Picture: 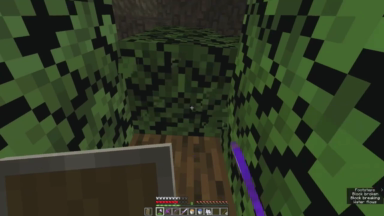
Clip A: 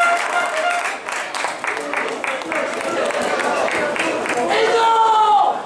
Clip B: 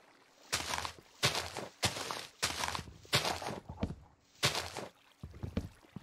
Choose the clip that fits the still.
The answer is B